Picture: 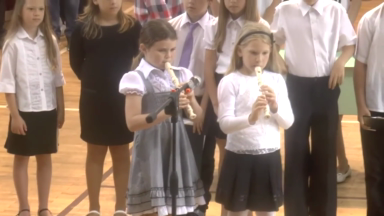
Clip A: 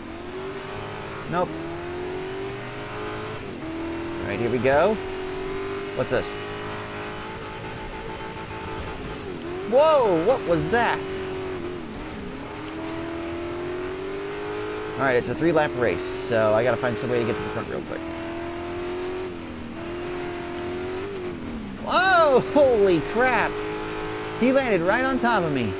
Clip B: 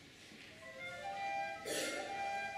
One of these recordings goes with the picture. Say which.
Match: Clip B